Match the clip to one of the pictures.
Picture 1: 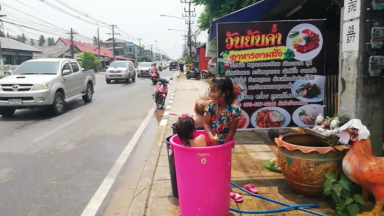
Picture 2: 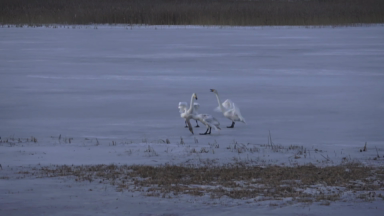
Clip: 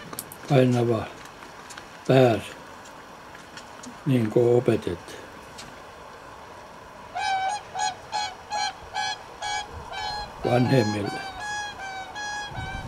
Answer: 2